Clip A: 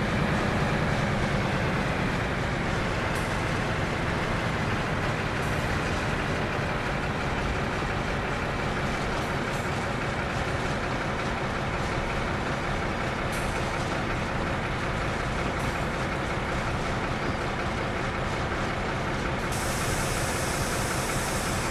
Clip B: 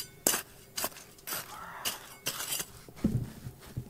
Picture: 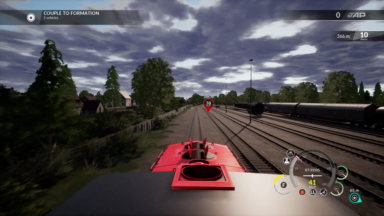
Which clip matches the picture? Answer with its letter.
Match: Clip A